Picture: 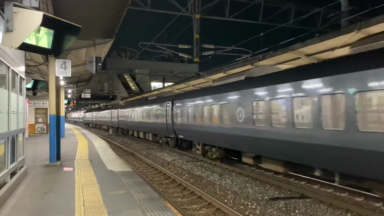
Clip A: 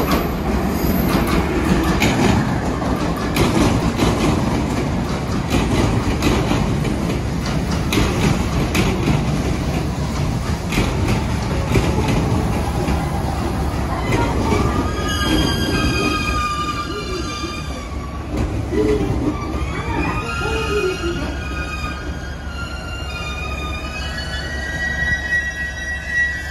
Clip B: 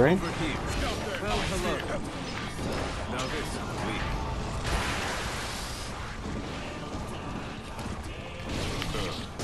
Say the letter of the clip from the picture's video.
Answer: A